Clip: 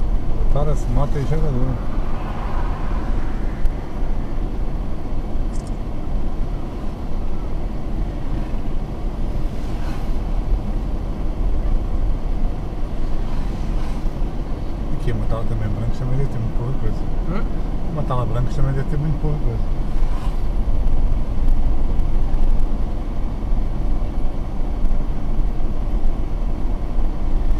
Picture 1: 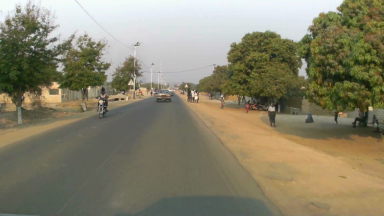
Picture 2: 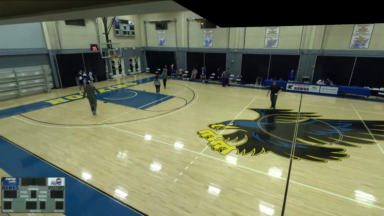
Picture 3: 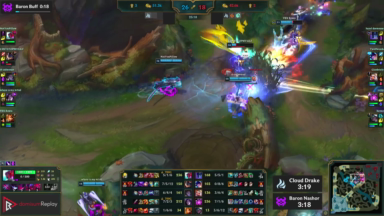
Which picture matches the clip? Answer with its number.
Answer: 1